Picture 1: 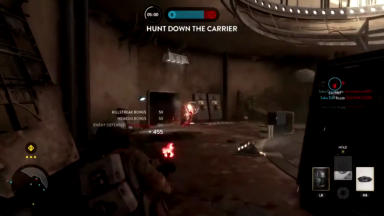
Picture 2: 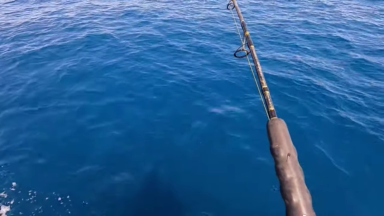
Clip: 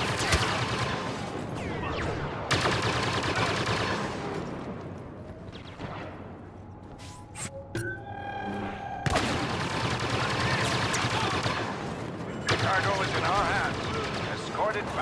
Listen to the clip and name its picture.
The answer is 1